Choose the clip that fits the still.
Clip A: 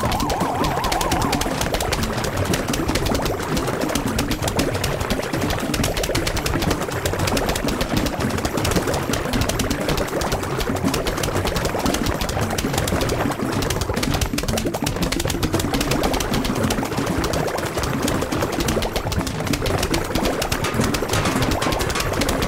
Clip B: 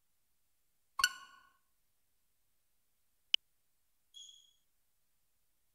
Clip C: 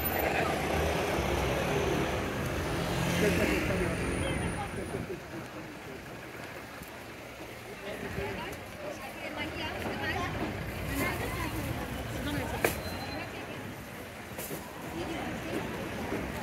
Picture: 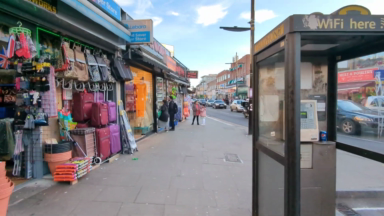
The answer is C